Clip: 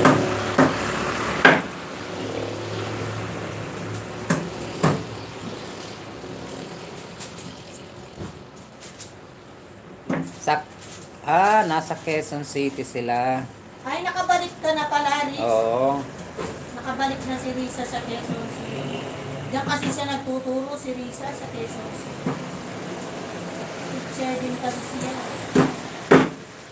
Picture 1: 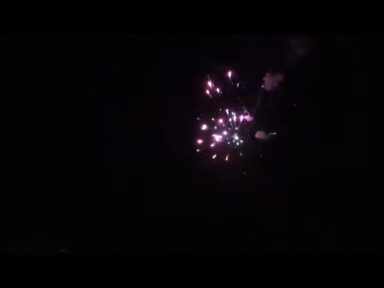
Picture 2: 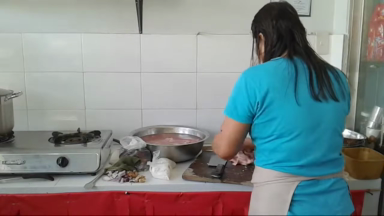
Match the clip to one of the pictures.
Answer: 2